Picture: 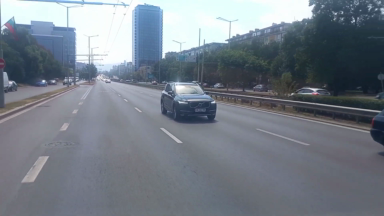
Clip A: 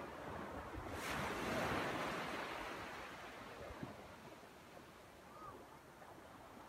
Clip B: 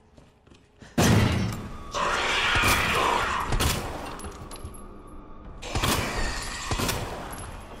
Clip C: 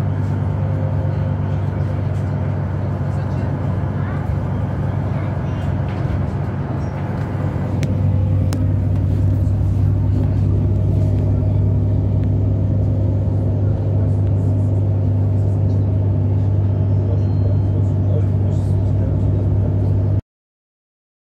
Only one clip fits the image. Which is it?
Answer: C